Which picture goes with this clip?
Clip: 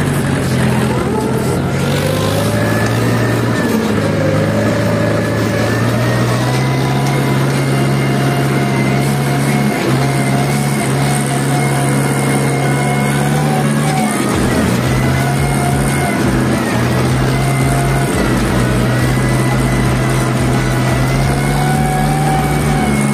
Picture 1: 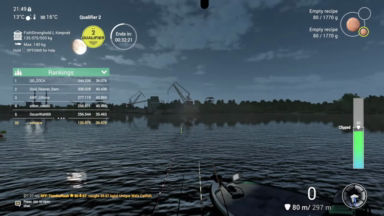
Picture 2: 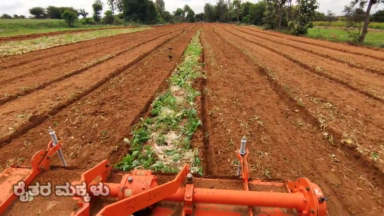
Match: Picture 2